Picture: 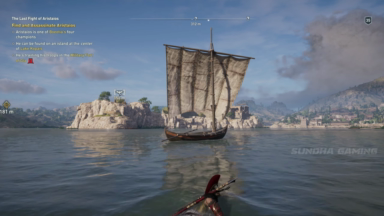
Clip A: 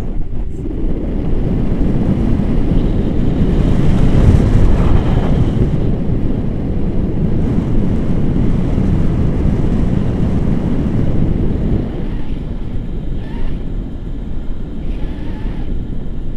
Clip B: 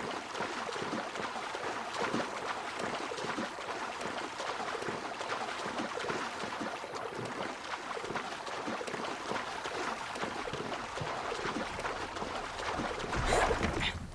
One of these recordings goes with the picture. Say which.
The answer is B